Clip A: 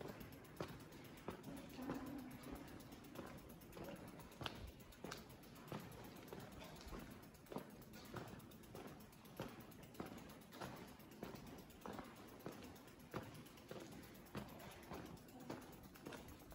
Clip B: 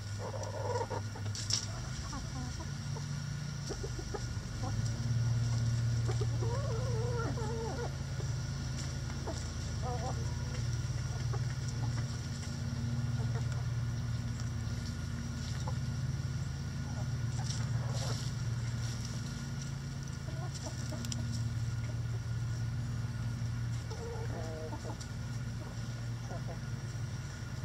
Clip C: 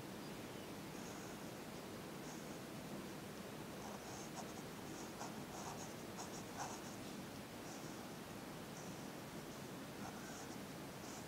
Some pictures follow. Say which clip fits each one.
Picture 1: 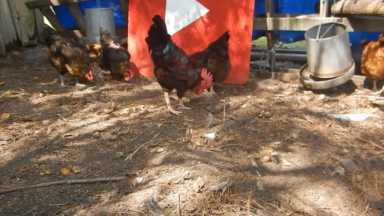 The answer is B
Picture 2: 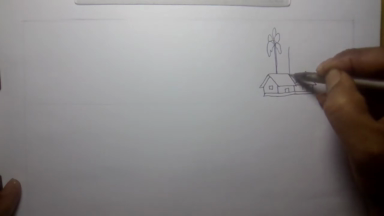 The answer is C